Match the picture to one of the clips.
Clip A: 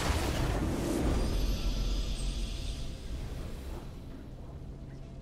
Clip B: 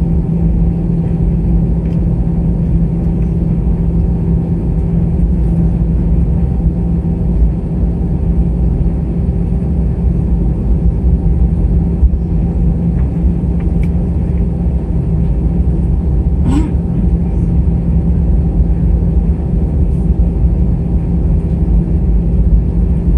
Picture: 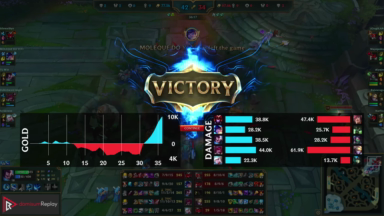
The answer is A